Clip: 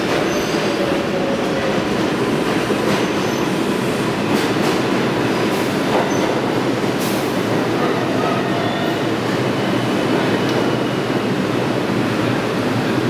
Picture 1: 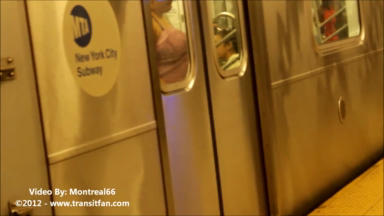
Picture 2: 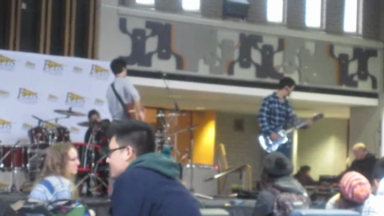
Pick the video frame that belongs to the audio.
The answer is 1